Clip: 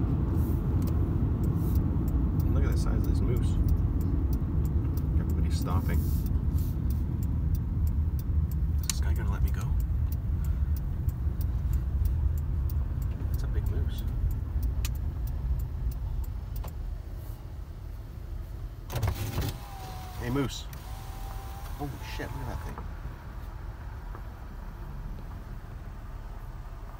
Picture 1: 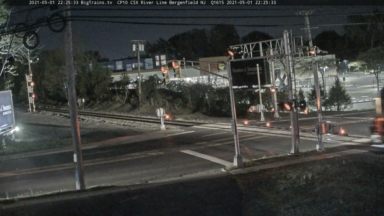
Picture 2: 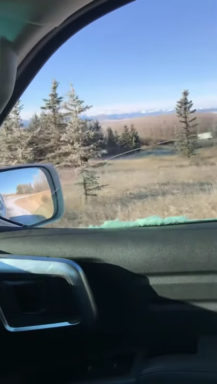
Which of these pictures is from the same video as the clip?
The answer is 2